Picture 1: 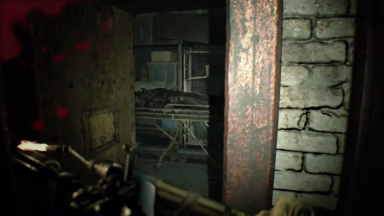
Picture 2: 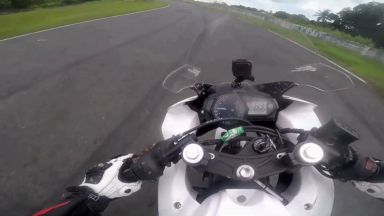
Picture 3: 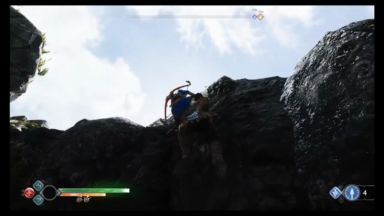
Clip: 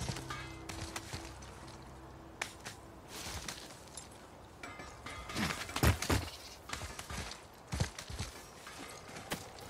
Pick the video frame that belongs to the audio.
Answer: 3